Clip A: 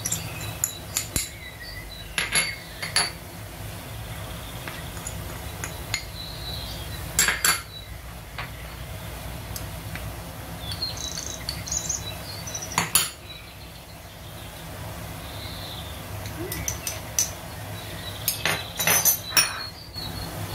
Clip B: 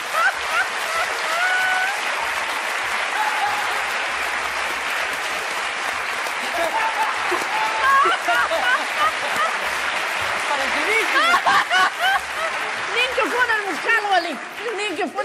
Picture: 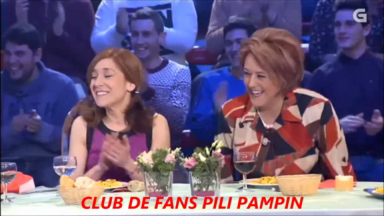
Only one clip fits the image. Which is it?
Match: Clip B